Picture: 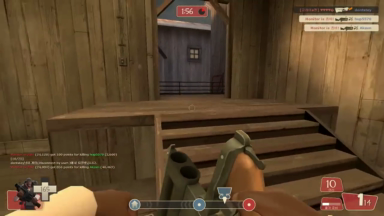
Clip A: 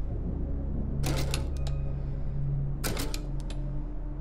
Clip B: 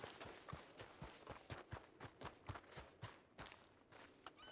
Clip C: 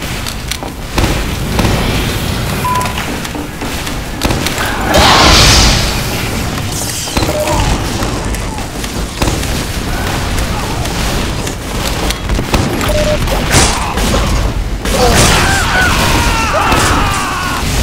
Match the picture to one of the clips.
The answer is C